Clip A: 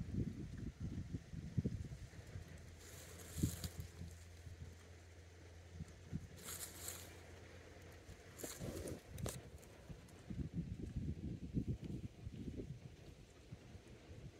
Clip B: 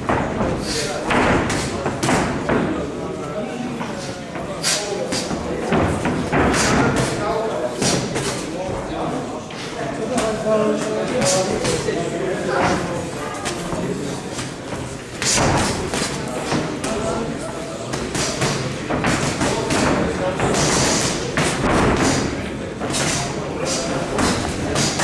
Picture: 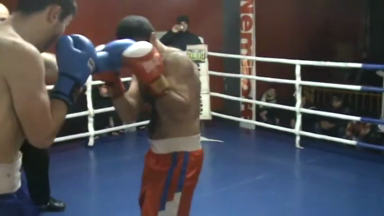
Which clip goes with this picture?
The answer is B